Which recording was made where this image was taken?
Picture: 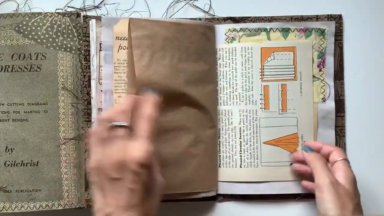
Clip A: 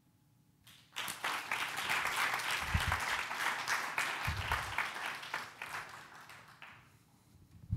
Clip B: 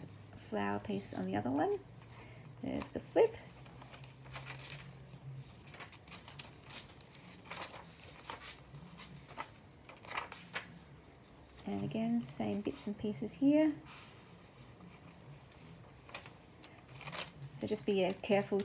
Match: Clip B